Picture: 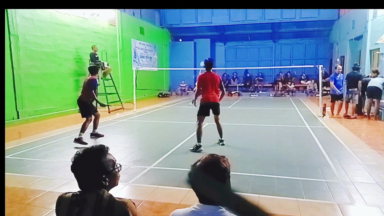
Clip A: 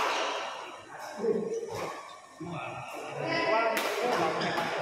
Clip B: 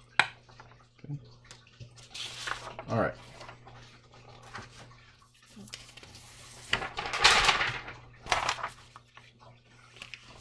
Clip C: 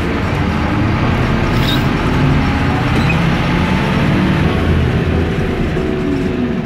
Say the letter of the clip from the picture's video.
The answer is A